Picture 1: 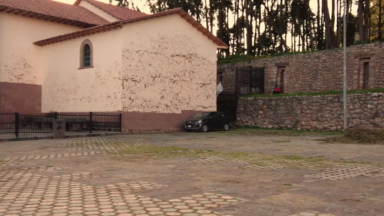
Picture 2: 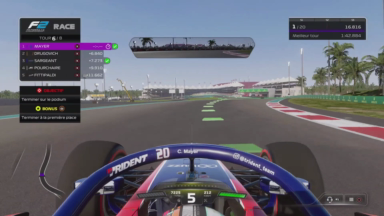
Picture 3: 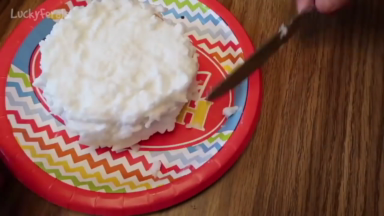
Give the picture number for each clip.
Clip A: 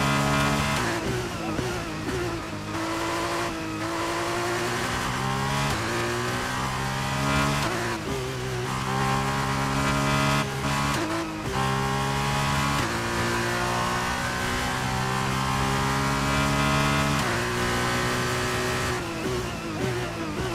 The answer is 2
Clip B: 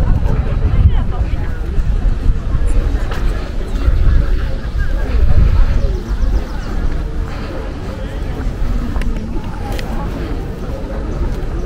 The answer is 1